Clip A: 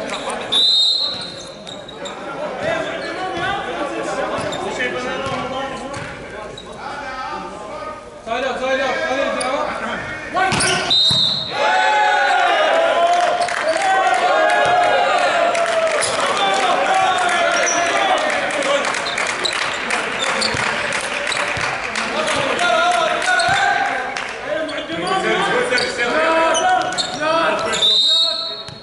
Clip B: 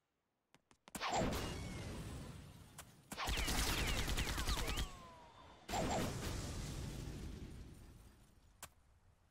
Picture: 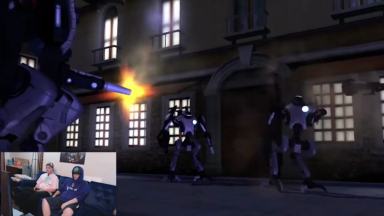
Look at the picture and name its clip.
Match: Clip B